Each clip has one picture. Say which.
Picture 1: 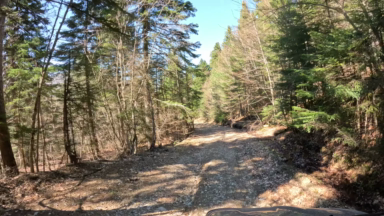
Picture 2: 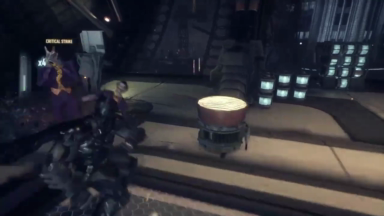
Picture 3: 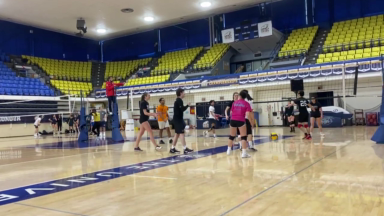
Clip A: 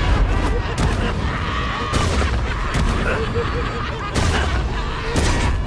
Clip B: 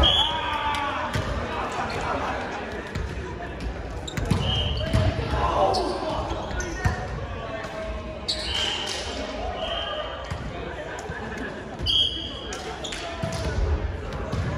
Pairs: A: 2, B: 3